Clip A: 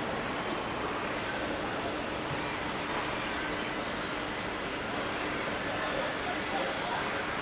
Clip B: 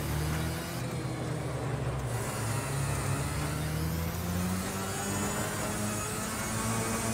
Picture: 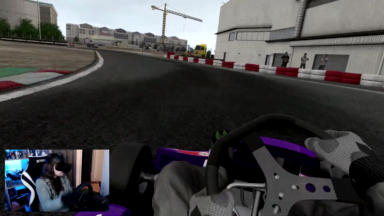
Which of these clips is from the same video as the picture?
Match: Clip B